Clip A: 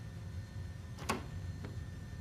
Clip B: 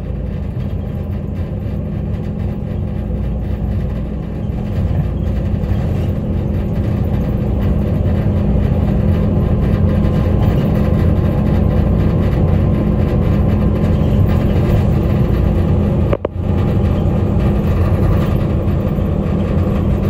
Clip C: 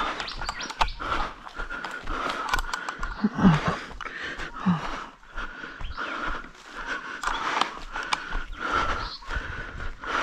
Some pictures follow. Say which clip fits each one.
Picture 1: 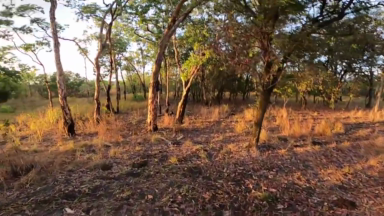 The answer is C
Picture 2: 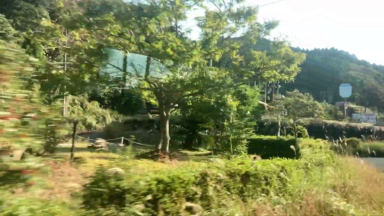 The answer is B